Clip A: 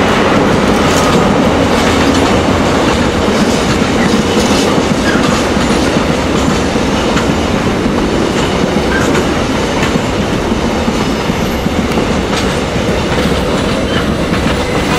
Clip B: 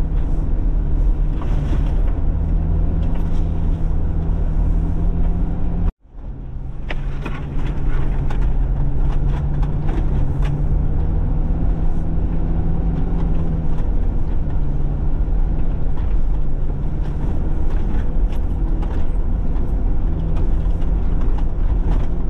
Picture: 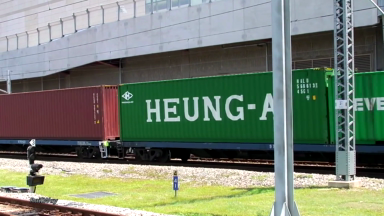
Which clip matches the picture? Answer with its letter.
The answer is A